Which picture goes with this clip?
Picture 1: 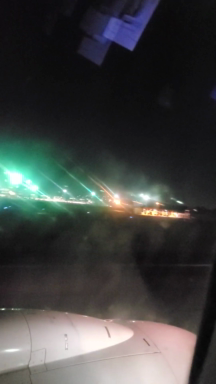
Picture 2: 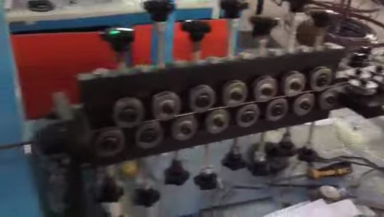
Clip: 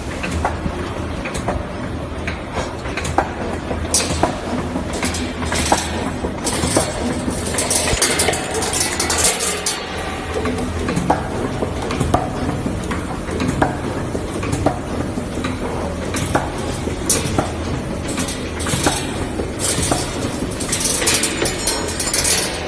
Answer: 2